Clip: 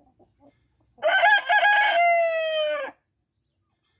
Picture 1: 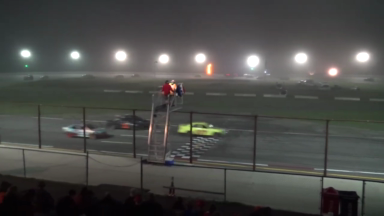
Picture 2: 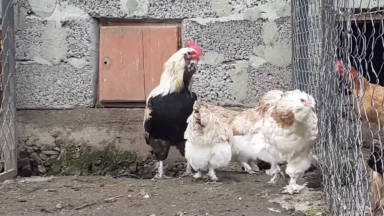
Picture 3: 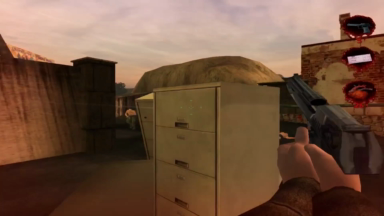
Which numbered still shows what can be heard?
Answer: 2